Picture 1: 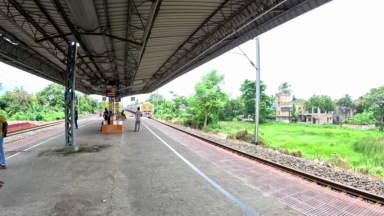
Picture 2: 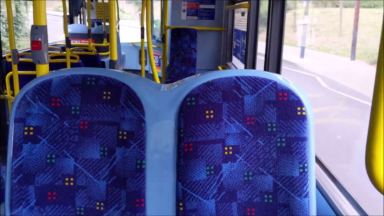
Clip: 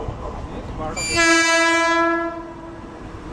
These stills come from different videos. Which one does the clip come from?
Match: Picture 1